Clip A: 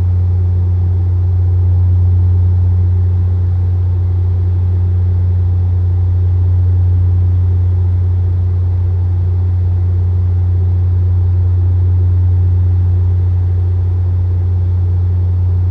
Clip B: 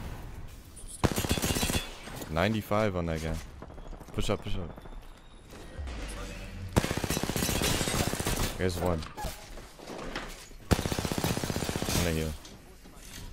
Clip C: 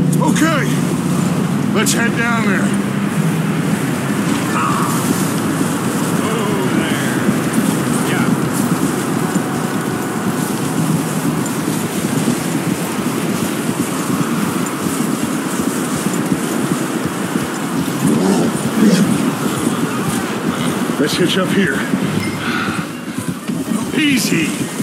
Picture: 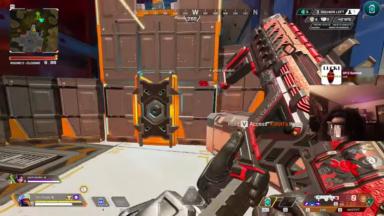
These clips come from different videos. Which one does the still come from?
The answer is B